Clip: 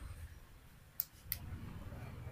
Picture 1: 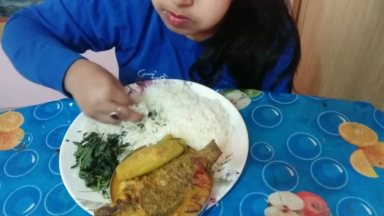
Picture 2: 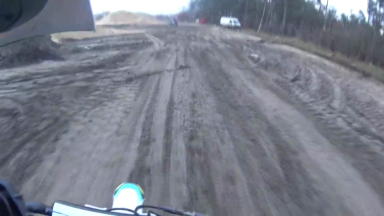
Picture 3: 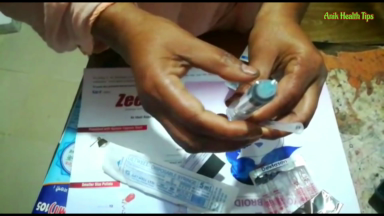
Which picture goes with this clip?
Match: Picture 3